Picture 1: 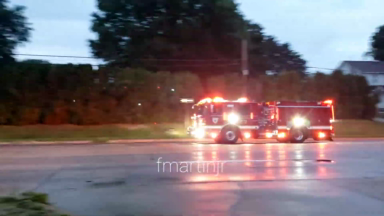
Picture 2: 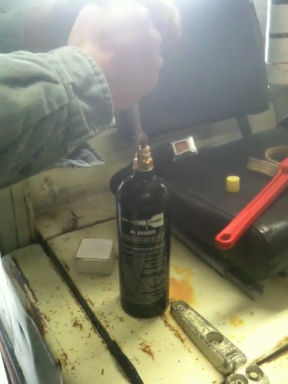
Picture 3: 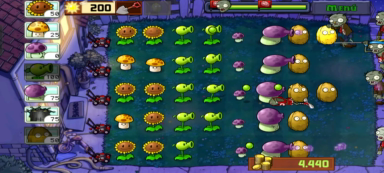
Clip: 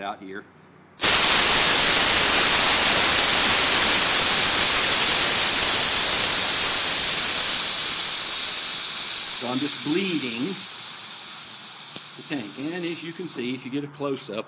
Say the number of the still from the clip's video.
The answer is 2